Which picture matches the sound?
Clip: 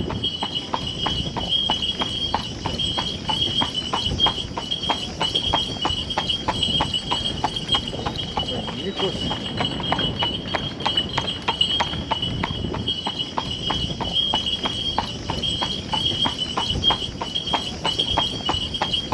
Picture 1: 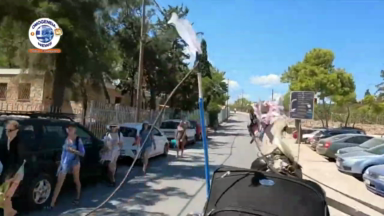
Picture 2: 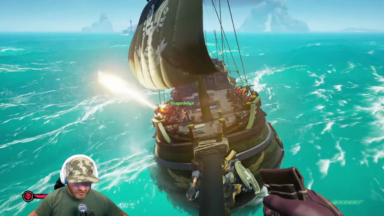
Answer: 1